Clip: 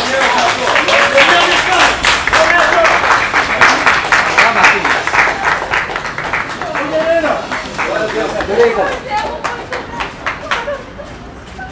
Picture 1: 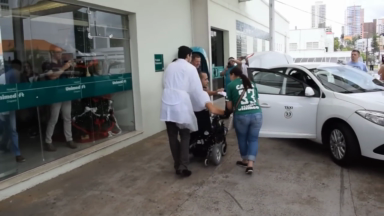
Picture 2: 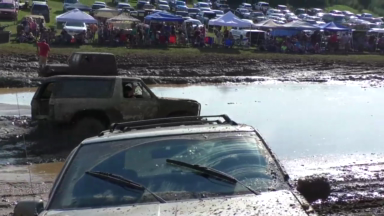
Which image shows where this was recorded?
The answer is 1